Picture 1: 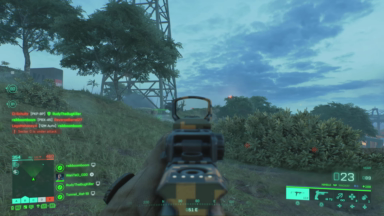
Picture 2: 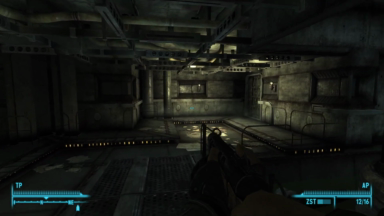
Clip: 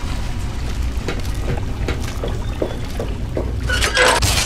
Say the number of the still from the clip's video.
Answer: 2